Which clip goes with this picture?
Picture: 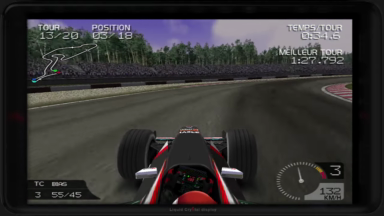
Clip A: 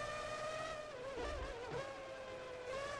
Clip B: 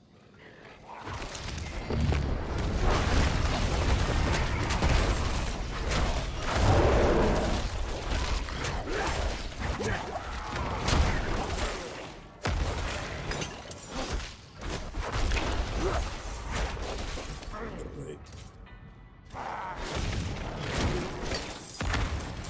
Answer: A